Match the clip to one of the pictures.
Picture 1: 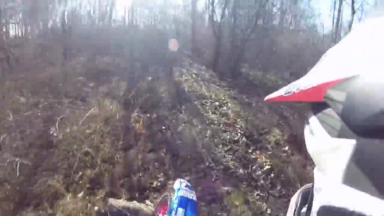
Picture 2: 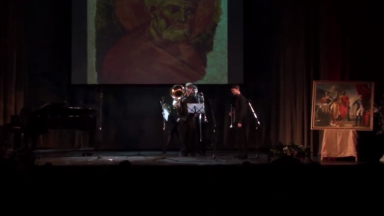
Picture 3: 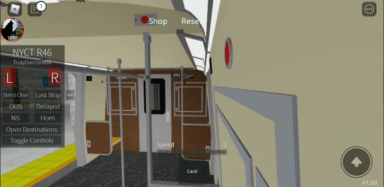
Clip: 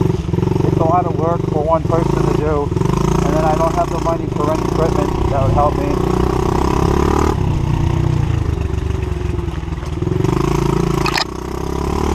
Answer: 1